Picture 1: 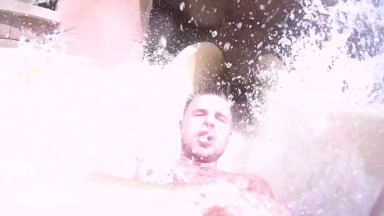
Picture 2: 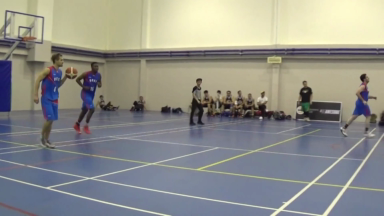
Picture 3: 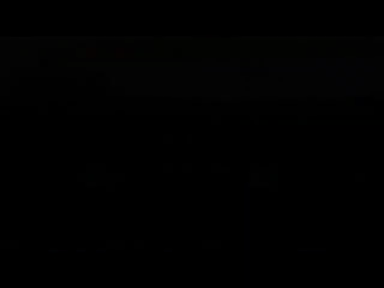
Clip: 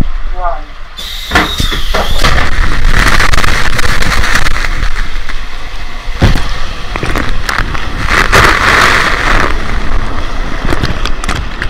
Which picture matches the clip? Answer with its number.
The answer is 1